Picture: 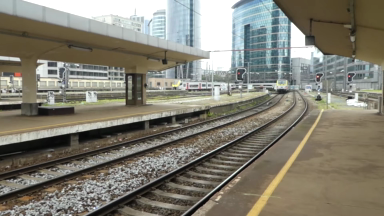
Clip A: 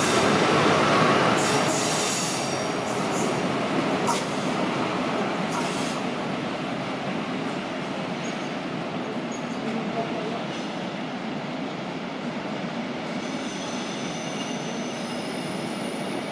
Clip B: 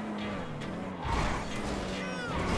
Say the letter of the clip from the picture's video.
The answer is A